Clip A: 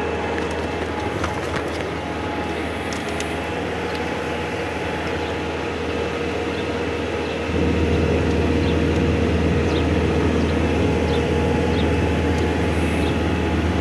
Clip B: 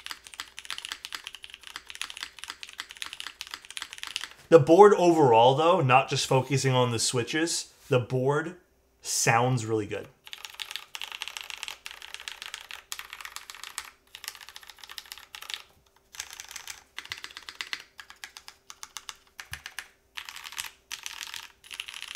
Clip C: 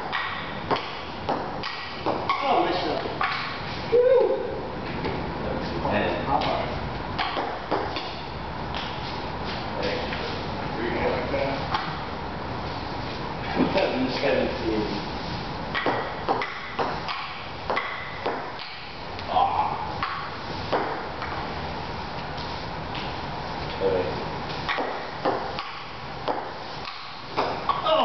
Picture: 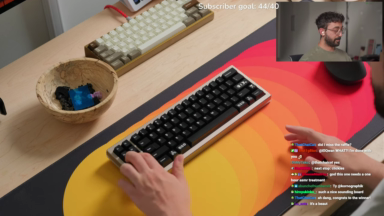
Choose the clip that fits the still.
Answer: B